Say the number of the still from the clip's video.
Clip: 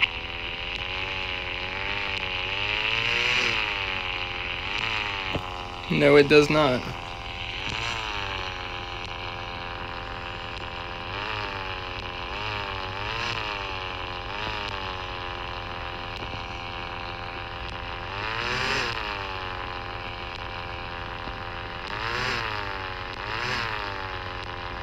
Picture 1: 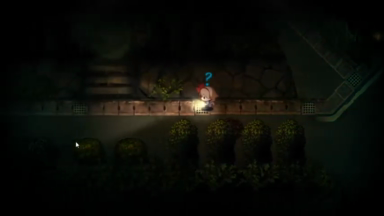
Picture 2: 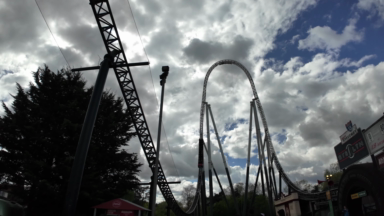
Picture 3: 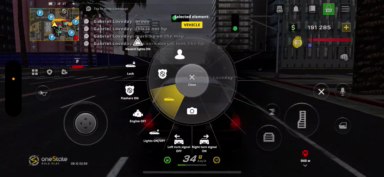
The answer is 3